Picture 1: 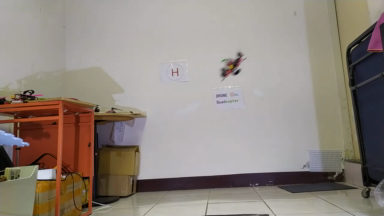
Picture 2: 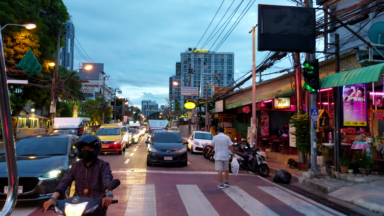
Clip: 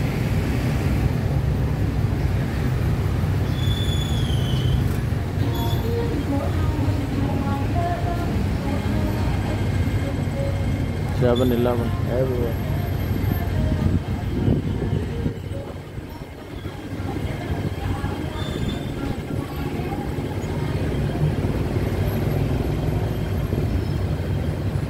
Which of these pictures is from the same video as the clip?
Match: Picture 2